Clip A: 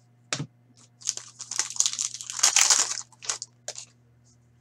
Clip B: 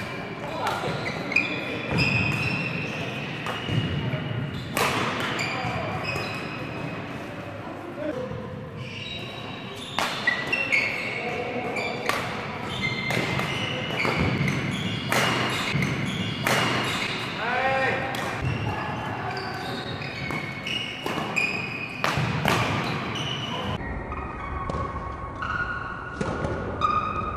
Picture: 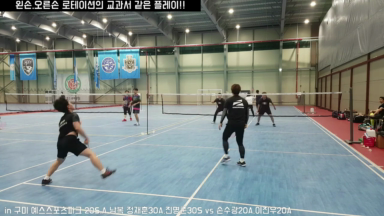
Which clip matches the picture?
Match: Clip B